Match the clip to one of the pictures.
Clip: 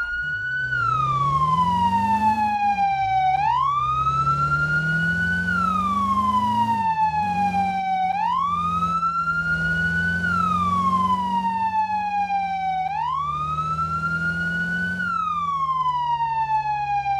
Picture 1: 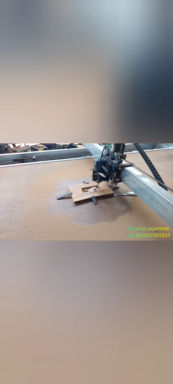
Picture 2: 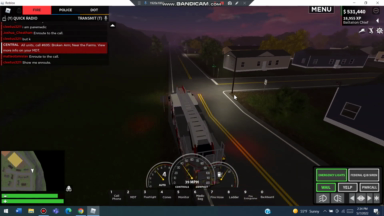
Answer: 2